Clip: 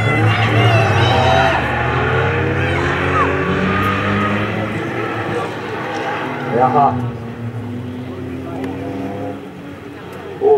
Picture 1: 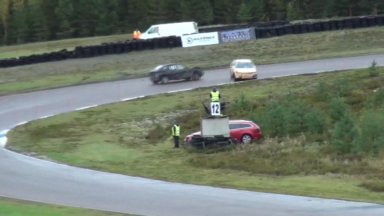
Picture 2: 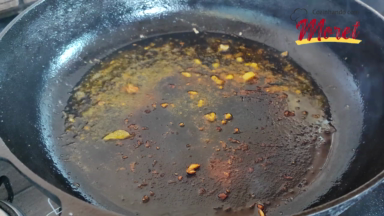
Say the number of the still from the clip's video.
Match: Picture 1